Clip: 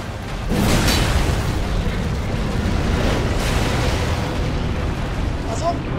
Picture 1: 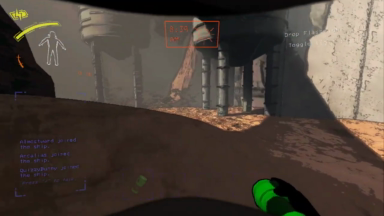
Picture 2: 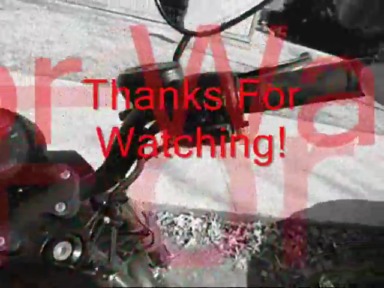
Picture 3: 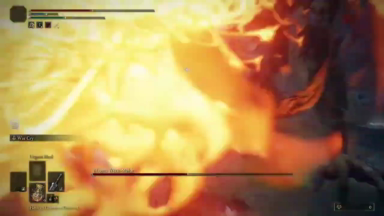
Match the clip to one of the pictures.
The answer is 3